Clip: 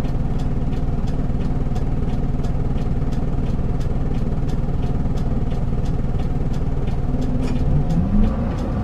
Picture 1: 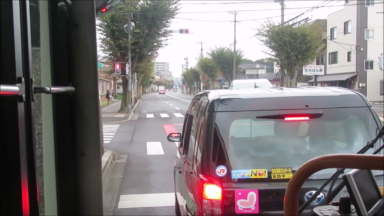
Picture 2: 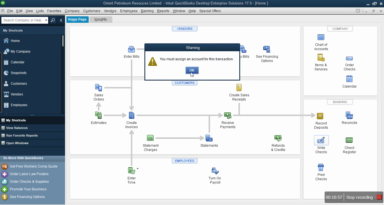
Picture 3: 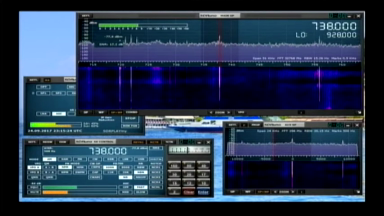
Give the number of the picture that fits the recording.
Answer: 1